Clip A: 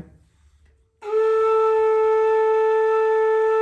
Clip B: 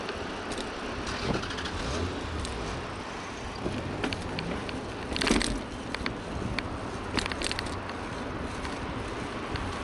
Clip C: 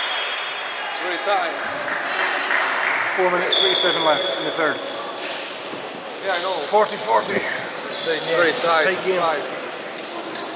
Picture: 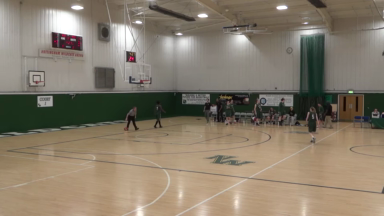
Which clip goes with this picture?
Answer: C